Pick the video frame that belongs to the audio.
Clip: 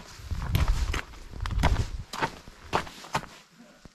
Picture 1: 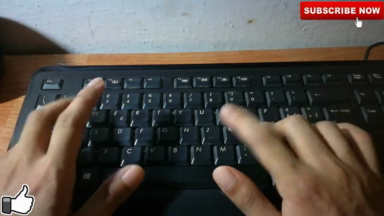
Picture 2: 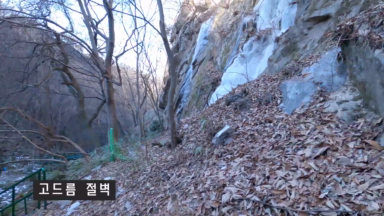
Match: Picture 2